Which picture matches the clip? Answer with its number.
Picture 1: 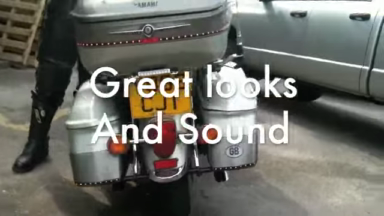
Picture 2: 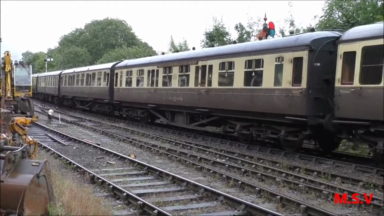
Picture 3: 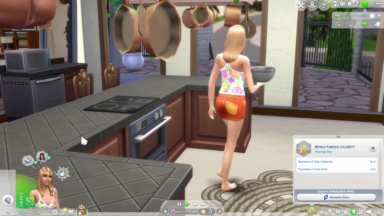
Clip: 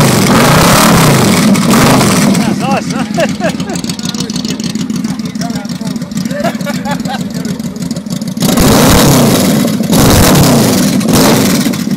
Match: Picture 1